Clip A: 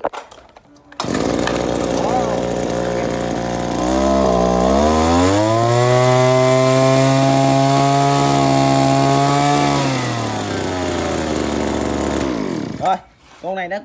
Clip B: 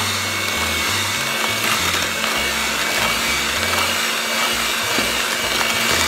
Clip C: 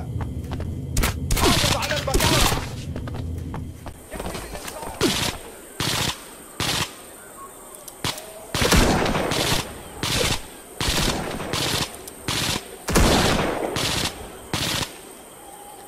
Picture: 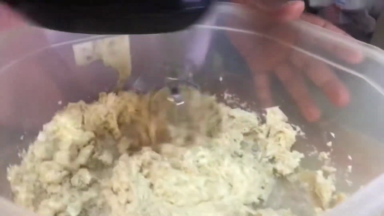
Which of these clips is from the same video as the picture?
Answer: B